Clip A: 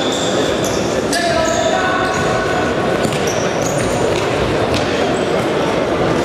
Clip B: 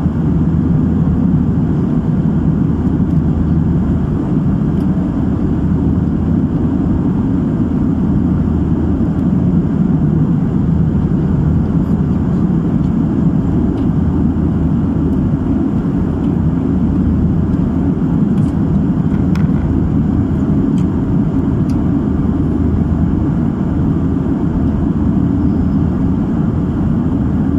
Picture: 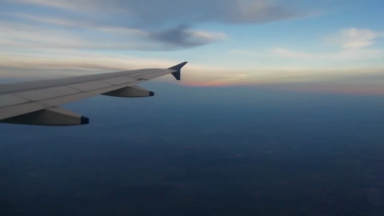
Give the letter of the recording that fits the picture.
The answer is B